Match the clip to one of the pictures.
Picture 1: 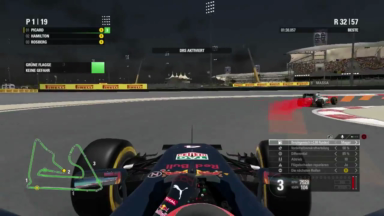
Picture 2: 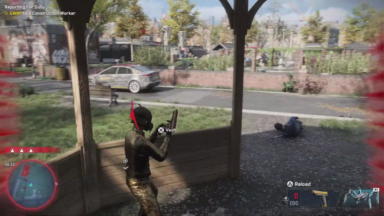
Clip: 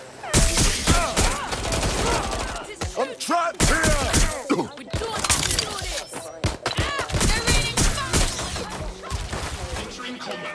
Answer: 2